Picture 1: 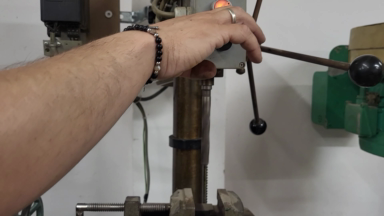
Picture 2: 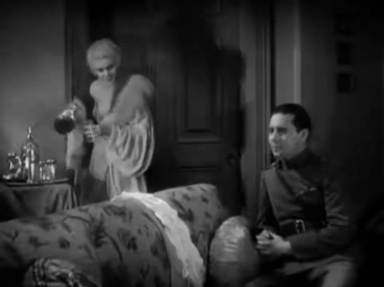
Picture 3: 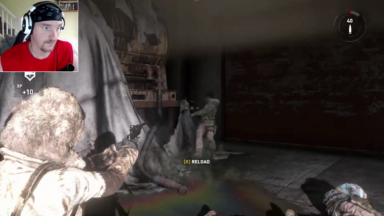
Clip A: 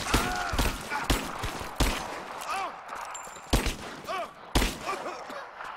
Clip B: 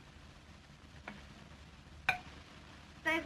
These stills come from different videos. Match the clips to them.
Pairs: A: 3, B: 2